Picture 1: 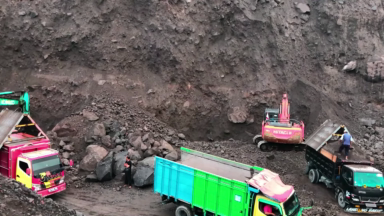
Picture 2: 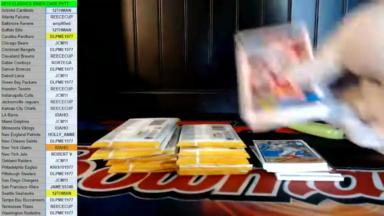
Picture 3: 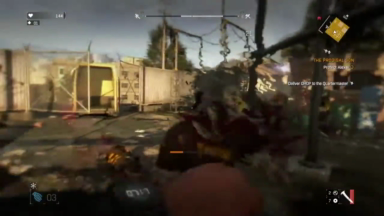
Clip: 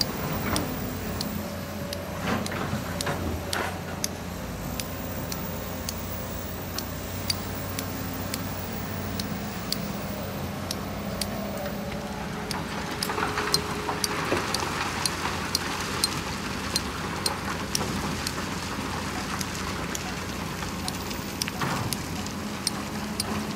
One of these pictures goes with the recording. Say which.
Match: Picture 1